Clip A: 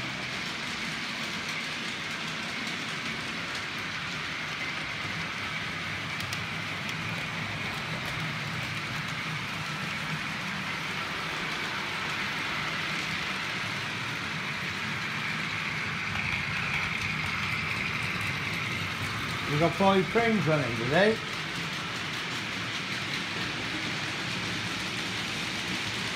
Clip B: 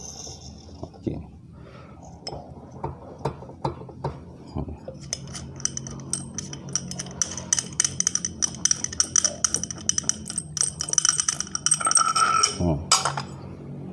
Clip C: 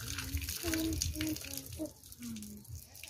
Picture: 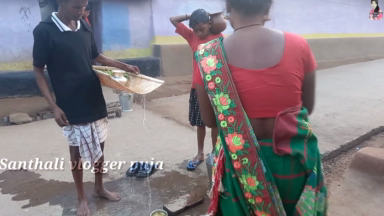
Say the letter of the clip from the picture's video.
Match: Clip C